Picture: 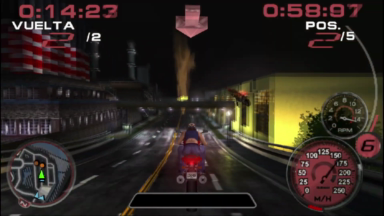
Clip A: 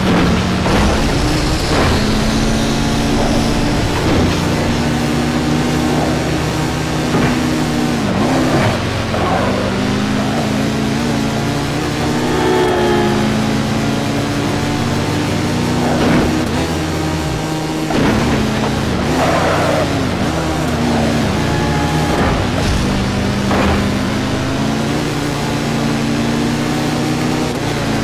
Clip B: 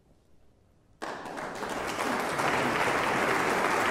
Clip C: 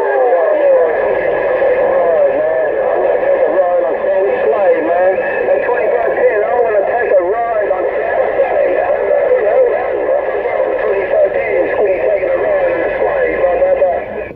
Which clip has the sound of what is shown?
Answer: A